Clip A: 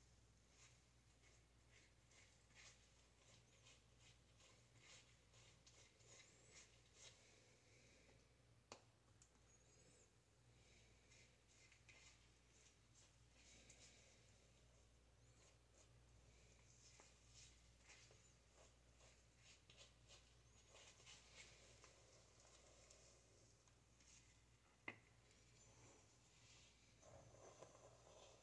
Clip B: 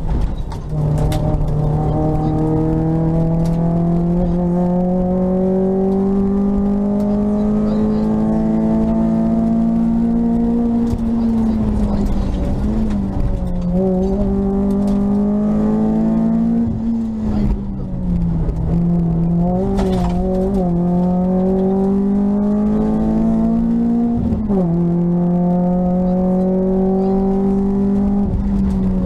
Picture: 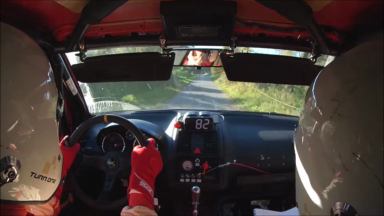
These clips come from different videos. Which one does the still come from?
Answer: B